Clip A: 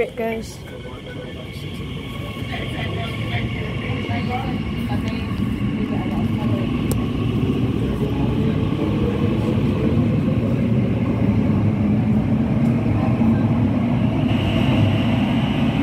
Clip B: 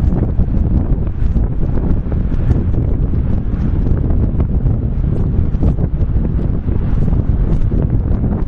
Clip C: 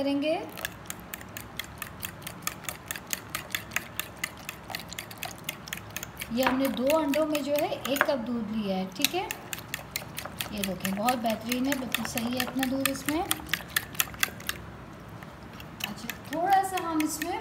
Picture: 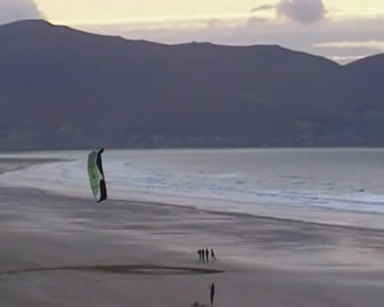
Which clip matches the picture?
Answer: B